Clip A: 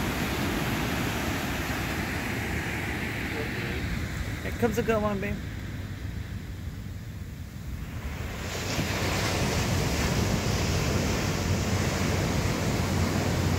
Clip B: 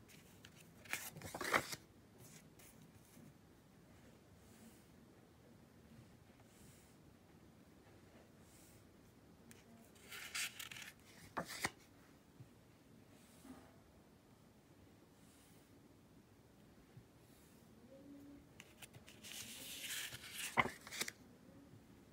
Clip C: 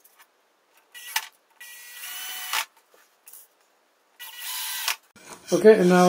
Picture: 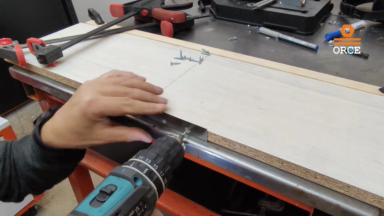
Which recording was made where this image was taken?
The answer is C